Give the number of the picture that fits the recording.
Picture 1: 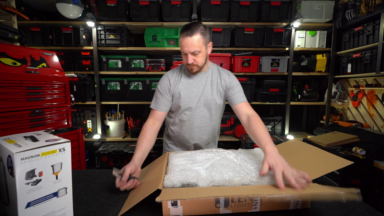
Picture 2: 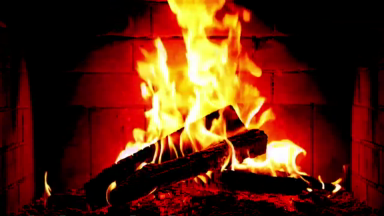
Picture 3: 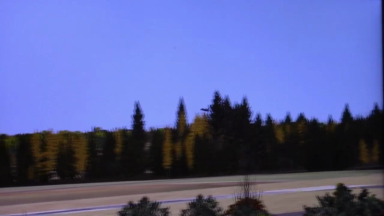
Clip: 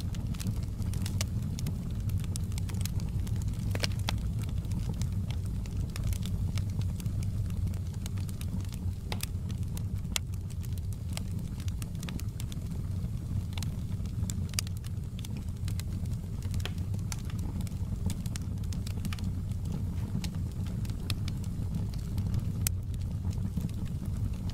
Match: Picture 2